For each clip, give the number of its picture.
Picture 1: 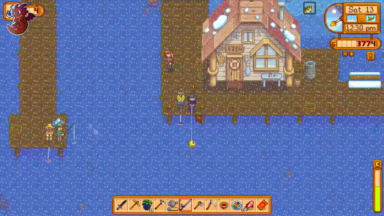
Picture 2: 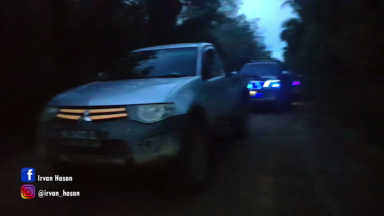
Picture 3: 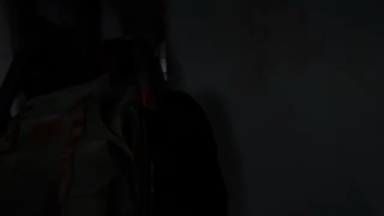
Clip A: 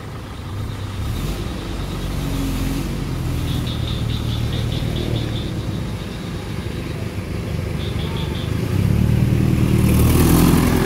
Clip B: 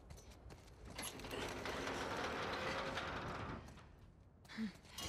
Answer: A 2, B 3